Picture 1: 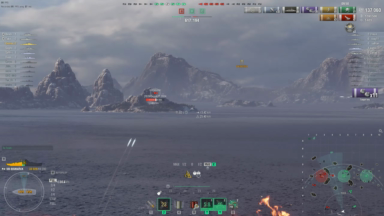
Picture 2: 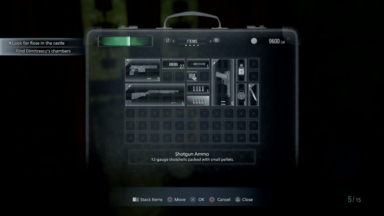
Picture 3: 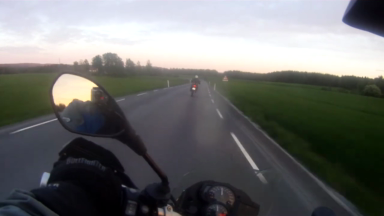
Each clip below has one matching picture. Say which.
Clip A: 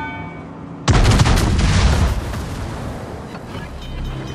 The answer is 1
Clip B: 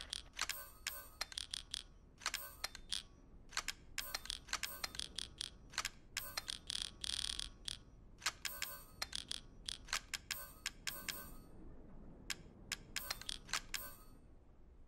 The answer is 2